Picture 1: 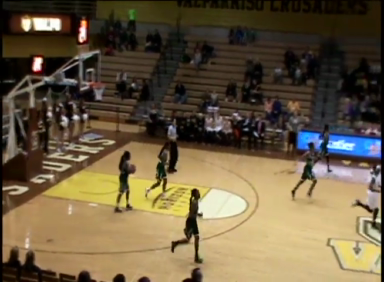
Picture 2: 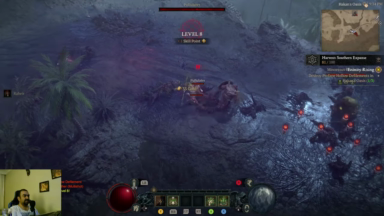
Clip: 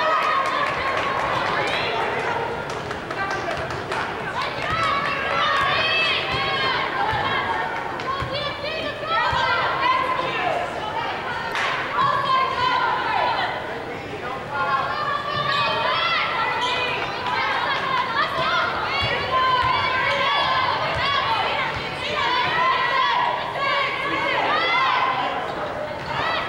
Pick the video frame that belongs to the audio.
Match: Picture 1